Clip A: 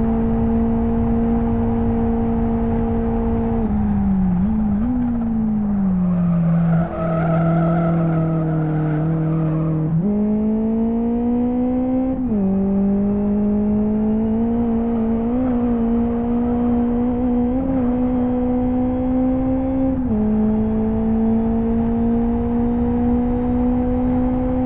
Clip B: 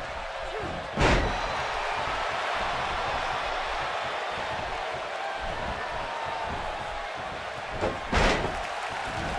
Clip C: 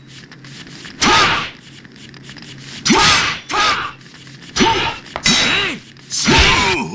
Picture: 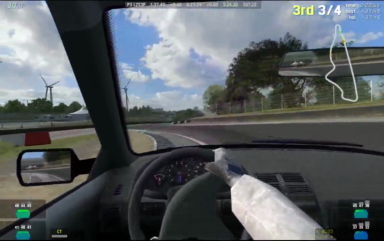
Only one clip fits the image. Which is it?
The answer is A